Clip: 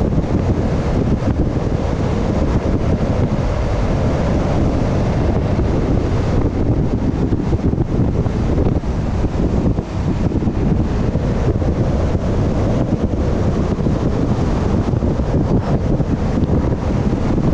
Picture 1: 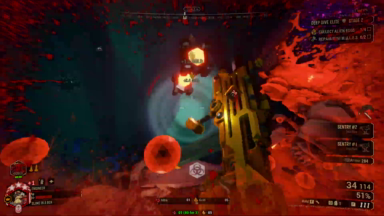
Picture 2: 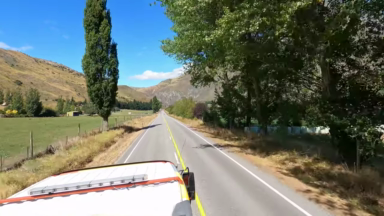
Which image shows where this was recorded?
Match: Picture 2